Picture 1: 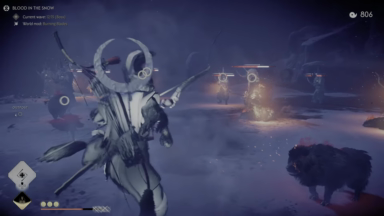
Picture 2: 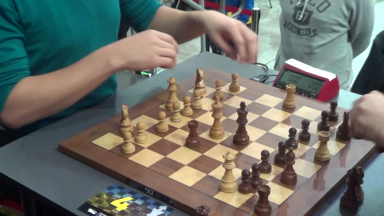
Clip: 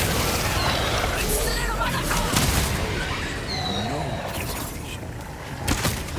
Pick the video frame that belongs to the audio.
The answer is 1